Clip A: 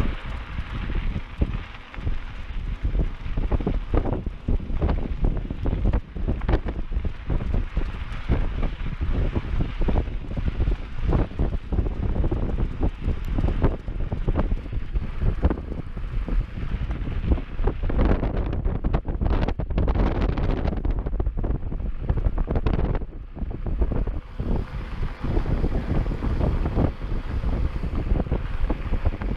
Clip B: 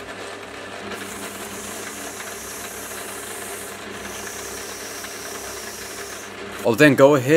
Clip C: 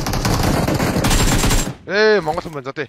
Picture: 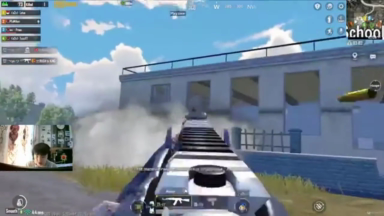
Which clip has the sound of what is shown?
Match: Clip C